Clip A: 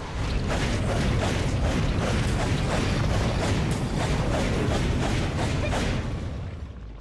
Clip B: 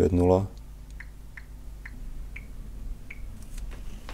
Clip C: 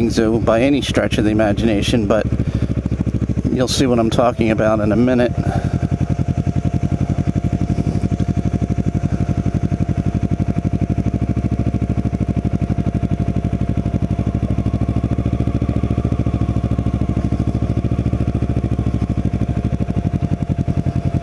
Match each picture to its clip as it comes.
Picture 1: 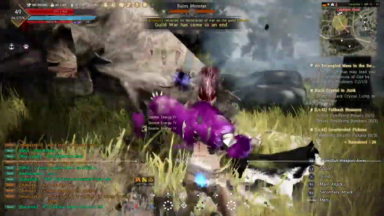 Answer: A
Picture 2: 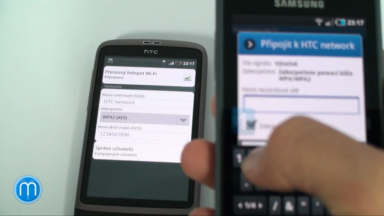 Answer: B